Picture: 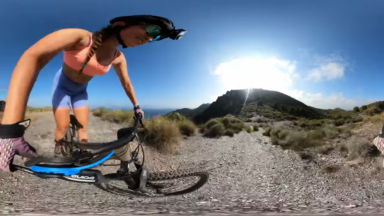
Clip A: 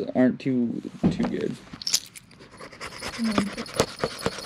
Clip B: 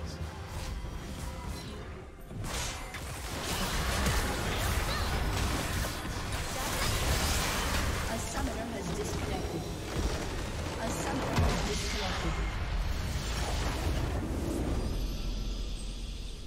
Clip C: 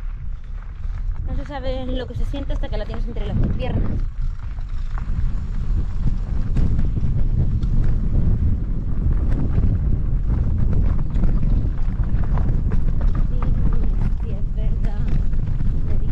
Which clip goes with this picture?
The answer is C